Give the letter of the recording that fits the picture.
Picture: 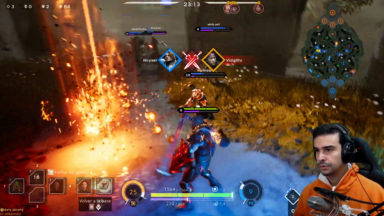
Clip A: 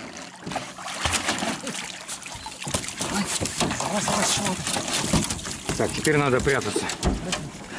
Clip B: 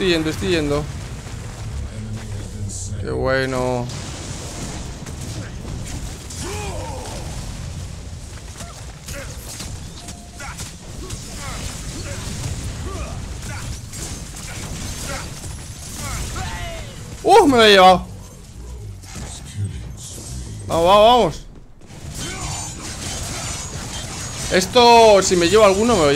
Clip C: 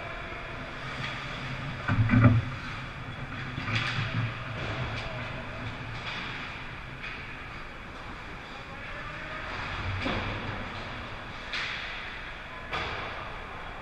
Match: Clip B